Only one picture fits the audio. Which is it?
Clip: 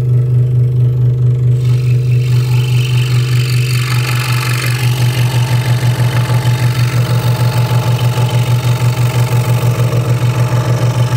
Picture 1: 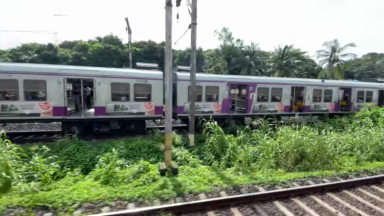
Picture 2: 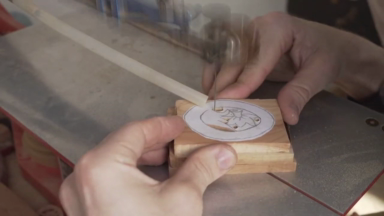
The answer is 2